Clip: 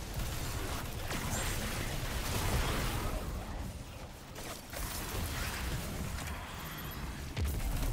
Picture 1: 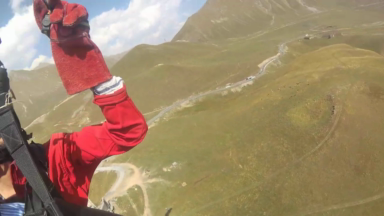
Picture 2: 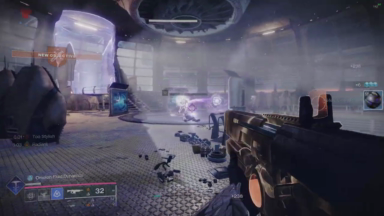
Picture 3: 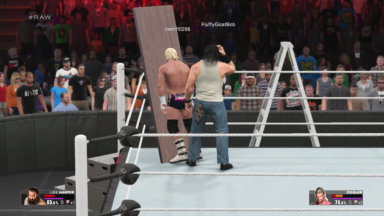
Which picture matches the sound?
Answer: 2